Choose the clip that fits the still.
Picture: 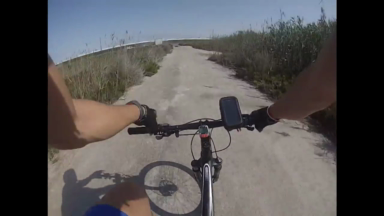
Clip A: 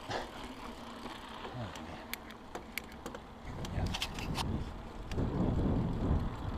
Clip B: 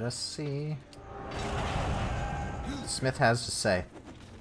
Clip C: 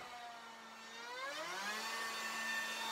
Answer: A